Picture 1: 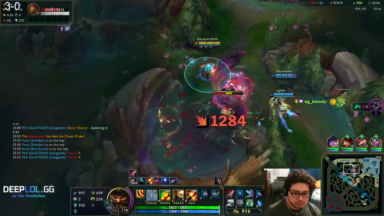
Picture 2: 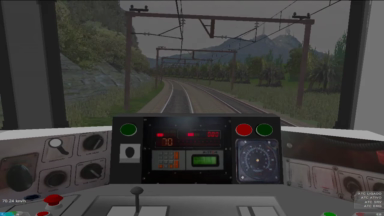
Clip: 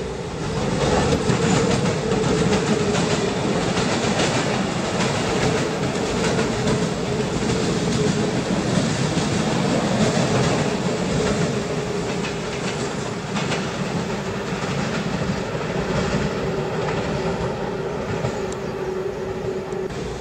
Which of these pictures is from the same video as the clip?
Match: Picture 2